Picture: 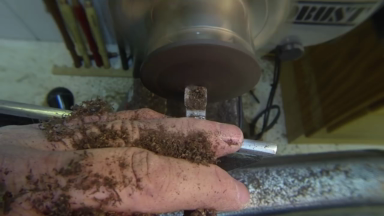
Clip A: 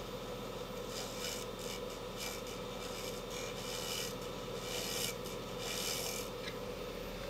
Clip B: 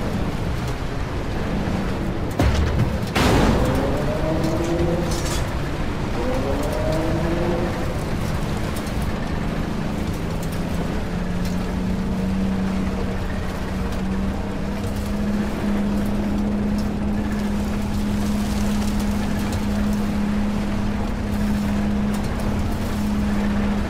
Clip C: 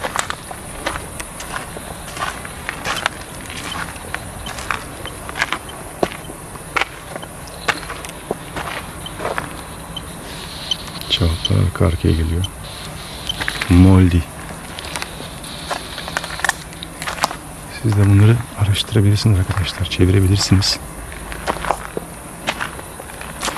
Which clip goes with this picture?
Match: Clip A